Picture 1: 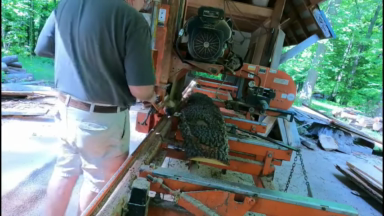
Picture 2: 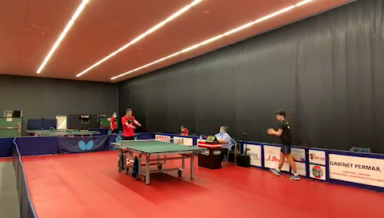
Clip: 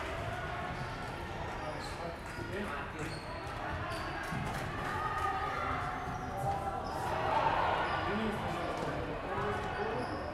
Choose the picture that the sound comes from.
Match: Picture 2